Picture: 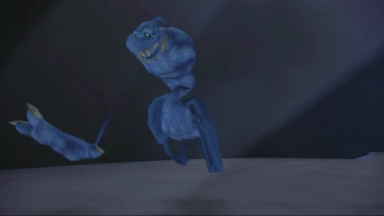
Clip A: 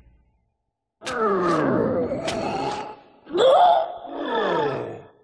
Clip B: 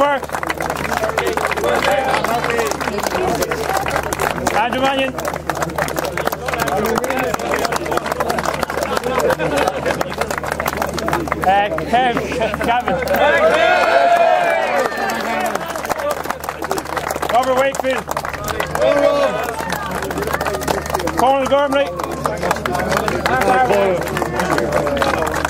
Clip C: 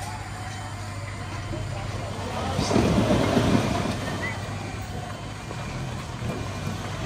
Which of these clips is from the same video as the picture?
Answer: A